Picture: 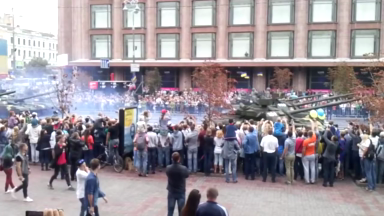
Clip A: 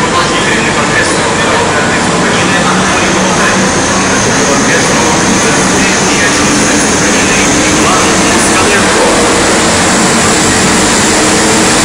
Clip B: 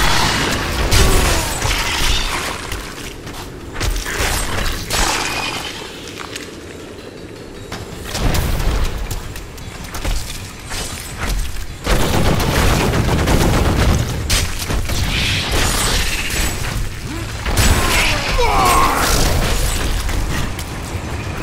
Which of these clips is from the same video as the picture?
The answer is A